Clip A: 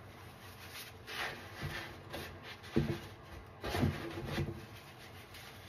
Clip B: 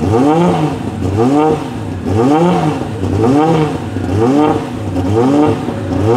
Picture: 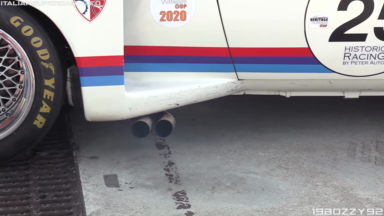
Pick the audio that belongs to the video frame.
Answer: B